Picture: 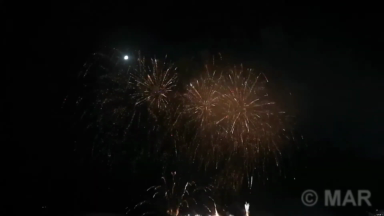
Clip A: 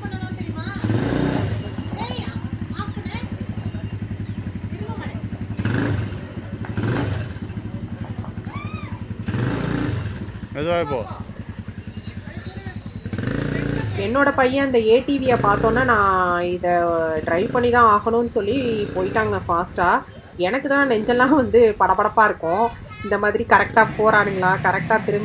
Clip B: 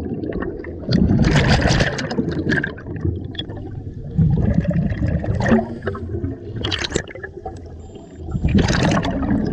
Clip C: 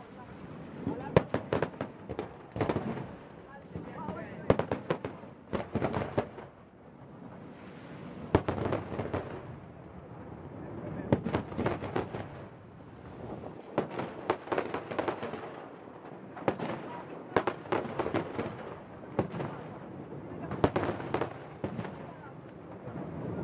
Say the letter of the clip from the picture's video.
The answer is C